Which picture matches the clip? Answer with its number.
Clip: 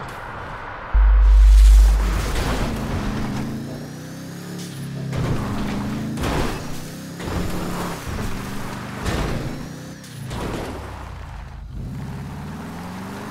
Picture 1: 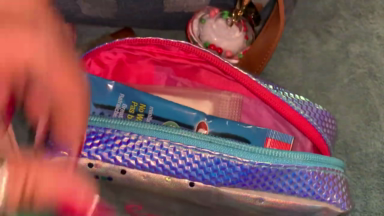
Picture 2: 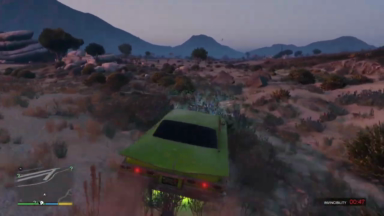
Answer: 2